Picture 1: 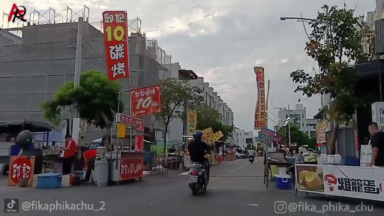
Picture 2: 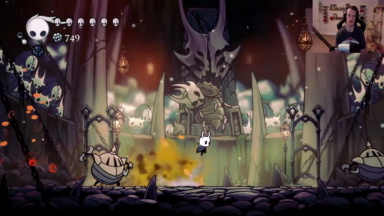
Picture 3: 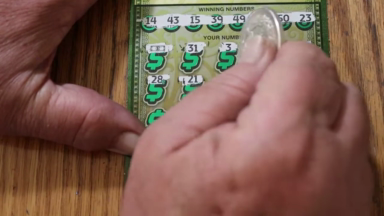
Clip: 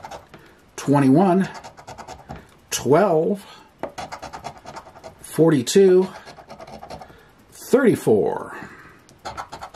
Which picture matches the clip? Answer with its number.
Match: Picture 3